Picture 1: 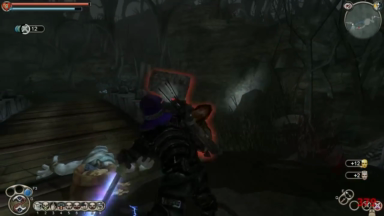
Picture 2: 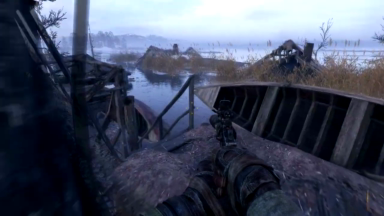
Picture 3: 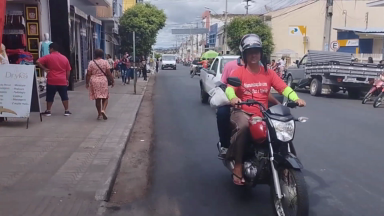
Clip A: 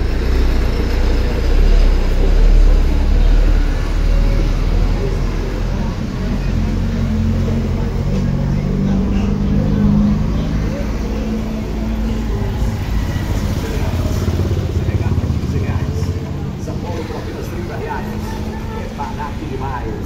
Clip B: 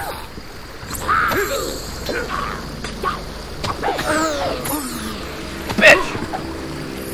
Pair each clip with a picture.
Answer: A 3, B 1